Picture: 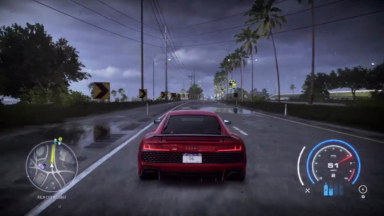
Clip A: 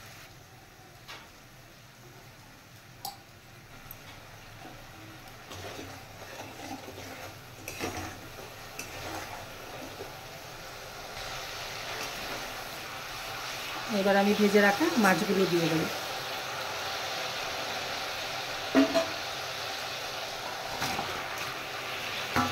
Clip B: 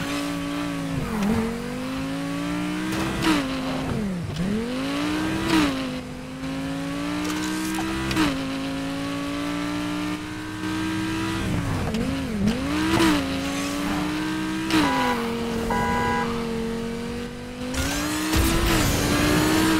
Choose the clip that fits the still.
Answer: B